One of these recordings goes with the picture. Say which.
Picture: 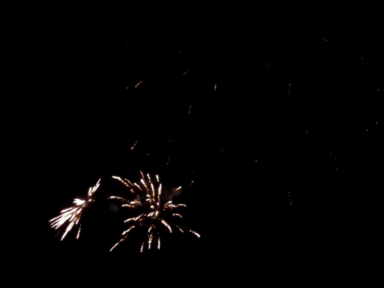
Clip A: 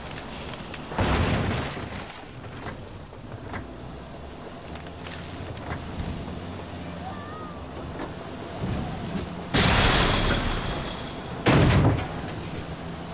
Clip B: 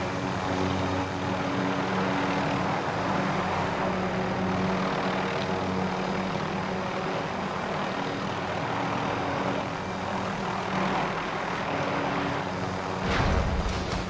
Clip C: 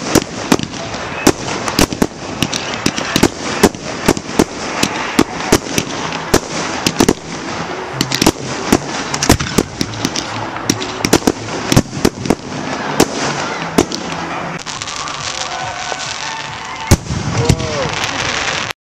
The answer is C